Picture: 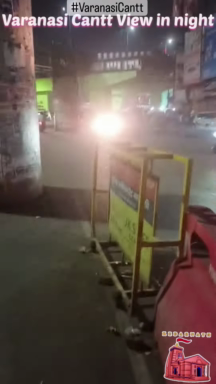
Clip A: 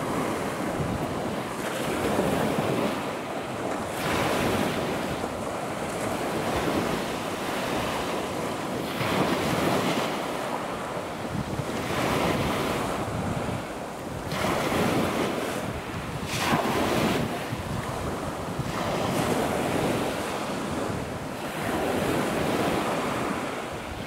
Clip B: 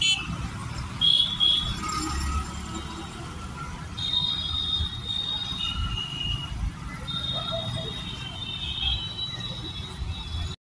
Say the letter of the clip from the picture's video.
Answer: B